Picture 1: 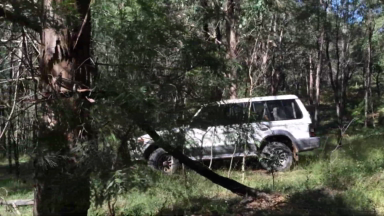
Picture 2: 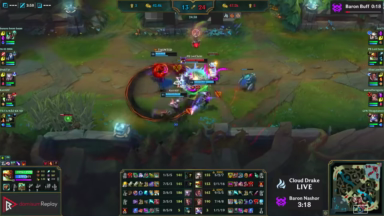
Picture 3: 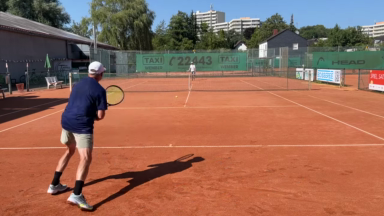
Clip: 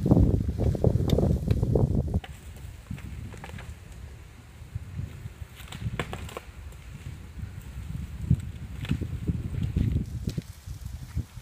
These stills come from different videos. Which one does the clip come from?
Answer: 1